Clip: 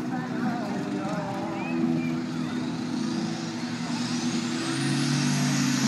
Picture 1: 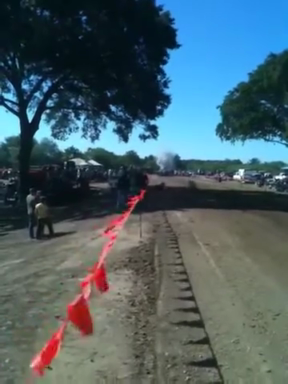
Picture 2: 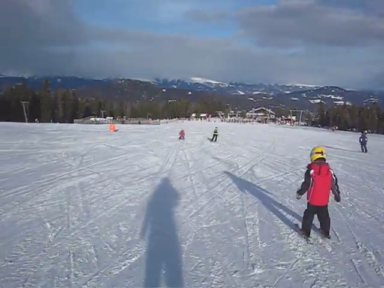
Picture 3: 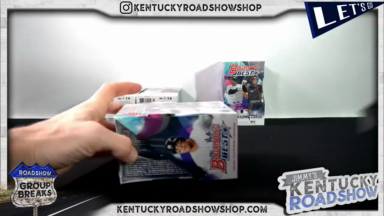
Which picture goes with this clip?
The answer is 1